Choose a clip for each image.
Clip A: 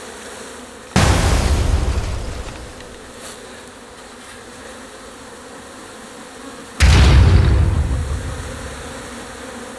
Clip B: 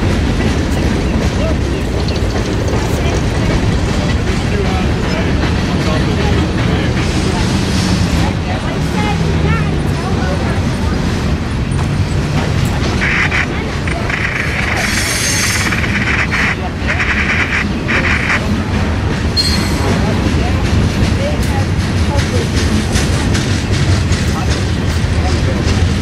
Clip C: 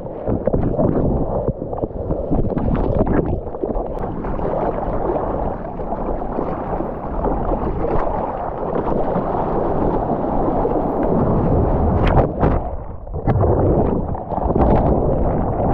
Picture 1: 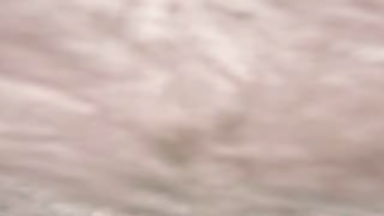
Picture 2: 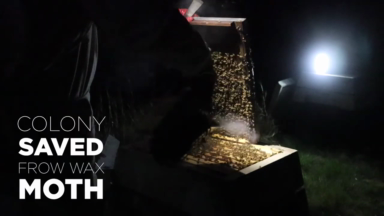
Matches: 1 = C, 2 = A